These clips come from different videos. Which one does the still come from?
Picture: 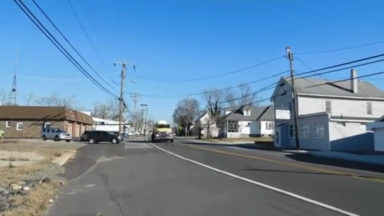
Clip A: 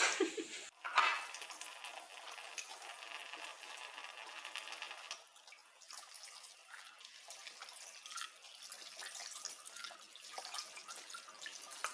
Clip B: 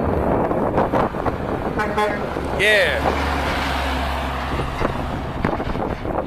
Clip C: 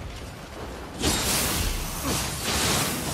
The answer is B